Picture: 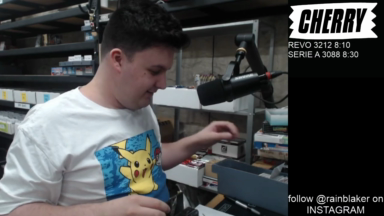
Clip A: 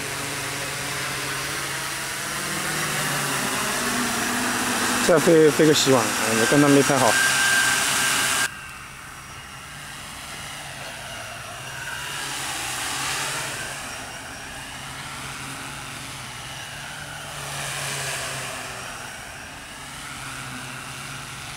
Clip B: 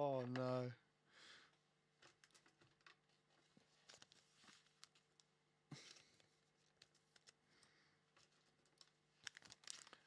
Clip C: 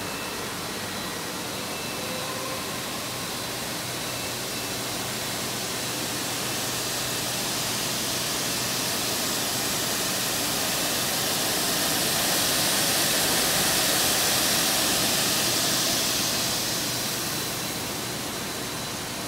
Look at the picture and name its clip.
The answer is B